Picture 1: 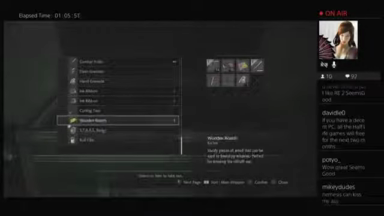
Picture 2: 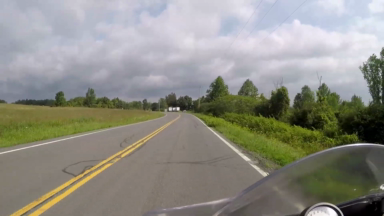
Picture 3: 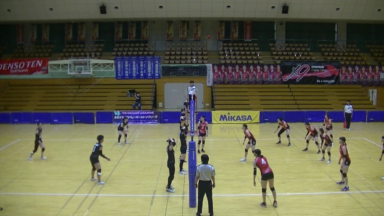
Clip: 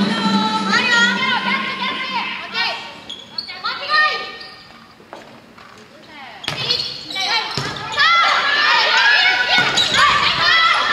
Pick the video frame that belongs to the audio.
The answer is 3